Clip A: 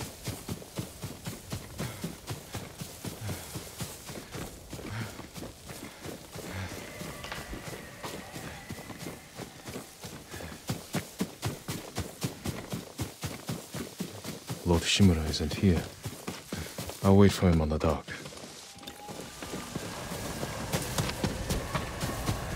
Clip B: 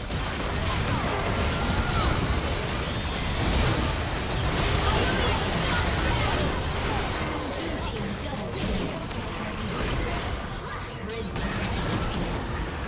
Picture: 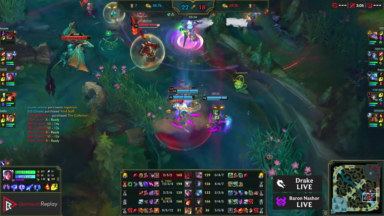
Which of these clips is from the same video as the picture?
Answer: B